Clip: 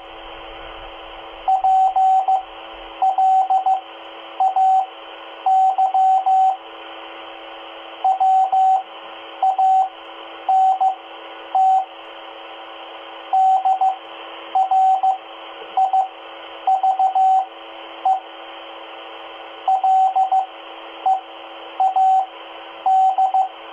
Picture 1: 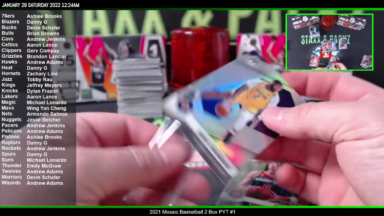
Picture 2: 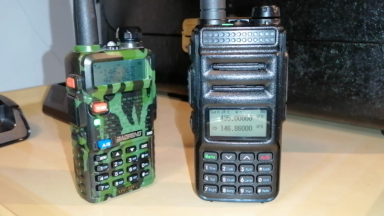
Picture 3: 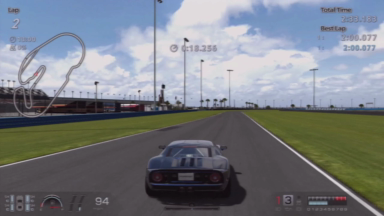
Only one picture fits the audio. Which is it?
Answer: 2